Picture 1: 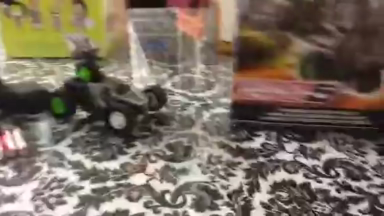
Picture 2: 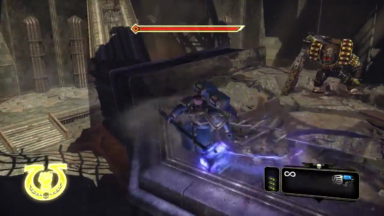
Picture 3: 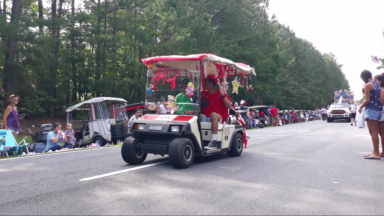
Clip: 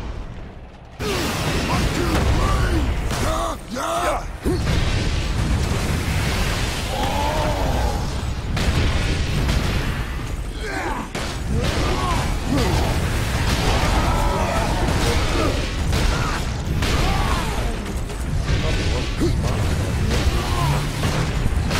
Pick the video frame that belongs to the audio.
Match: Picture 2